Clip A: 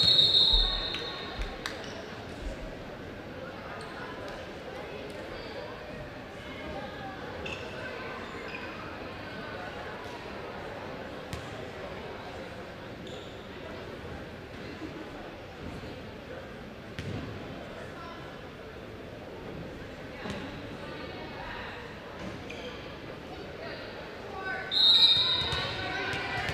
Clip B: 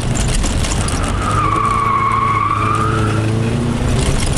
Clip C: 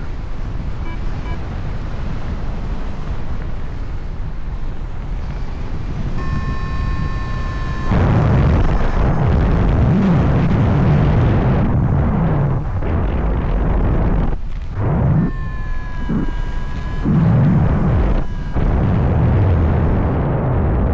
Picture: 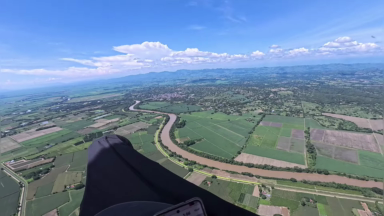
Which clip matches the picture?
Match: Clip C